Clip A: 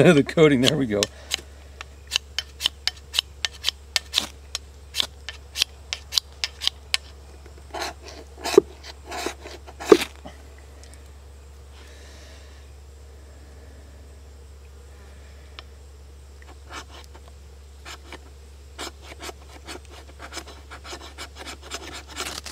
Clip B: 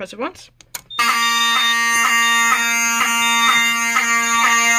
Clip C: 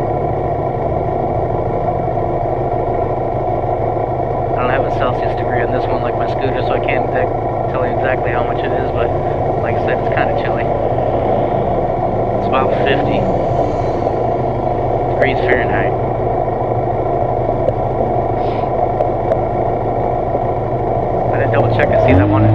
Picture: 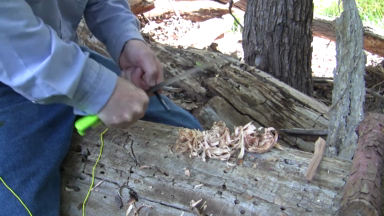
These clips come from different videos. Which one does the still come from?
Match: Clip A